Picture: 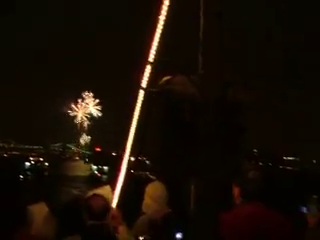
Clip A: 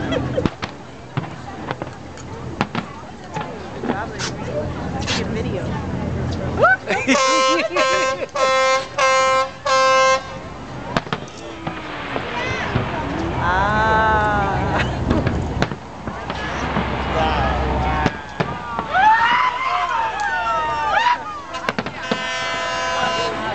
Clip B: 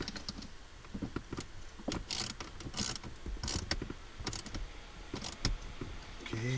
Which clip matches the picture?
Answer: A